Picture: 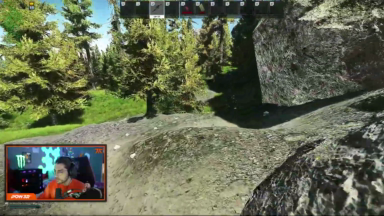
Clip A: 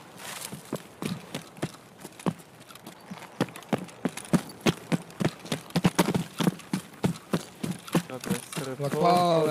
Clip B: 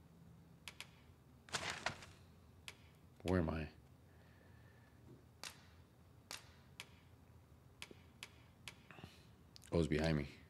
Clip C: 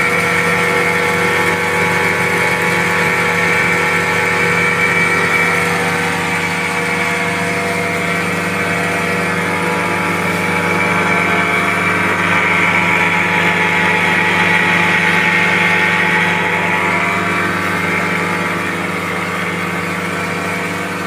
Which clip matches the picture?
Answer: A